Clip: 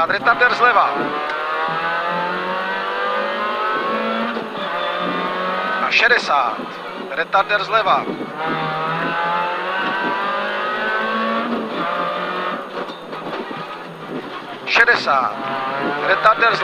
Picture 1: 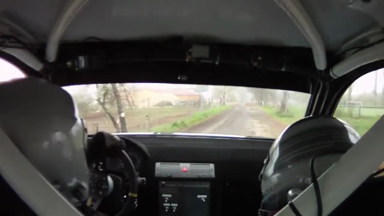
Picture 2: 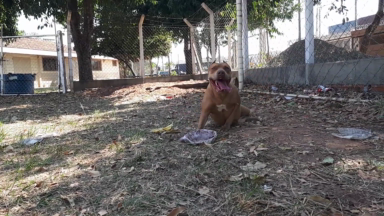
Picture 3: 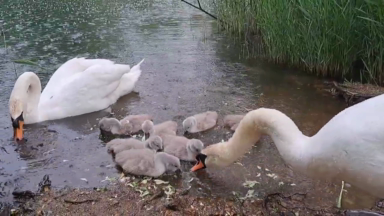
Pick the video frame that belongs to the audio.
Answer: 1